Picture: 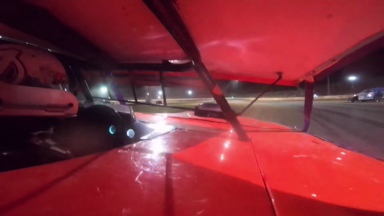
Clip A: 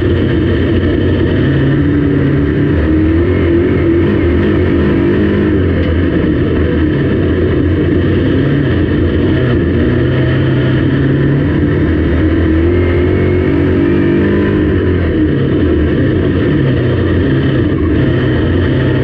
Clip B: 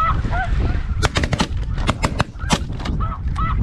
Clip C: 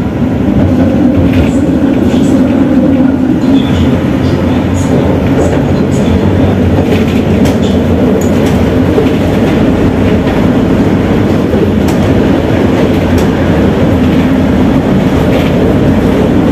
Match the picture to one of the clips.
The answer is A